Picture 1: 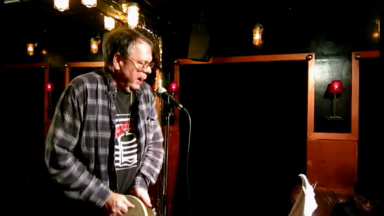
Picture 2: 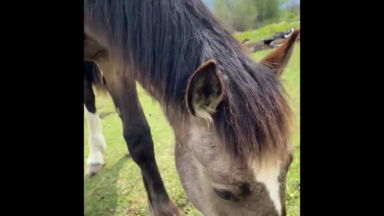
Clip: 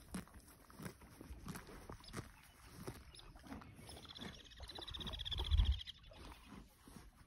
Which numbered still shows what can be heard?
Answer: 2